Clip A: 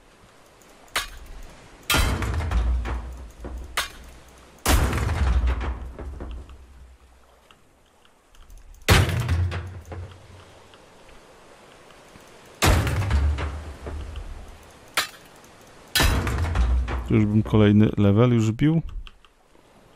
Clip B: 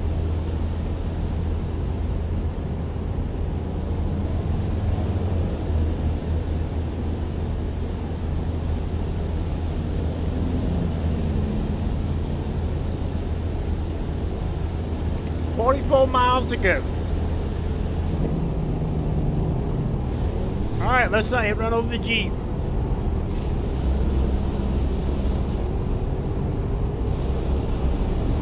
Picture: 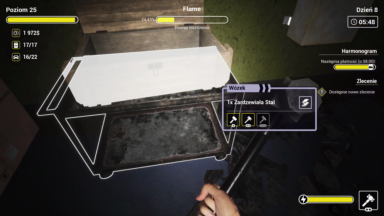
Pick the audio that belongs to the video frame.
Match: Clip A